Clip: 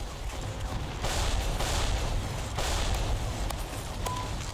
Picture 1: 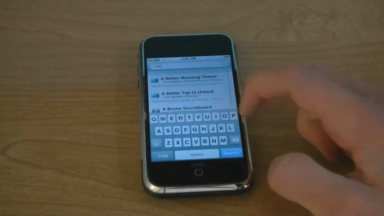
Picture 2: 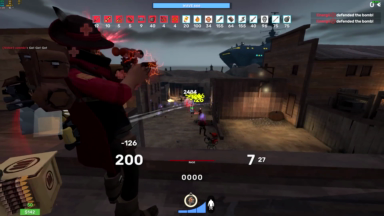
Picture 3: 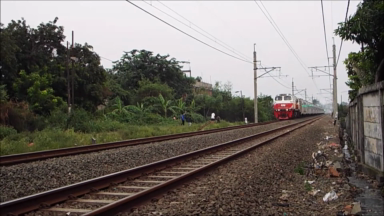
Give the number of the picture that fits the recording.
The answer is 2